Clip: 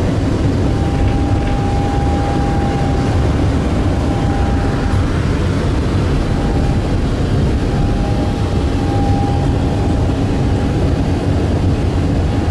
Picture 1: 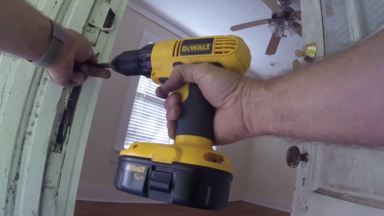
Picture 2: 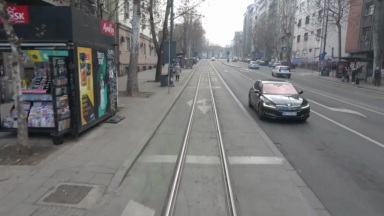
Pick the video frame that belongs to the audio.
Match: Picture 2